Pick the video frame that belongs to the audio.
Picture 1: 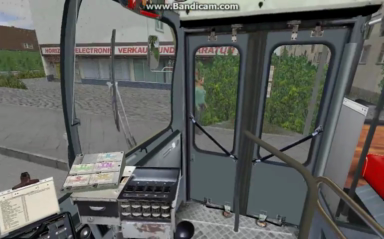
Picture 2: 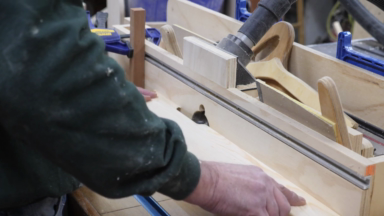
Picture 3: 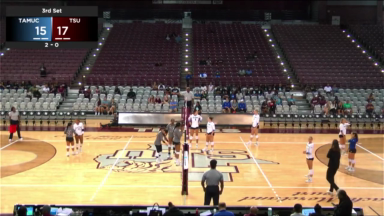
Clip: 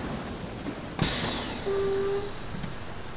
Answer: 1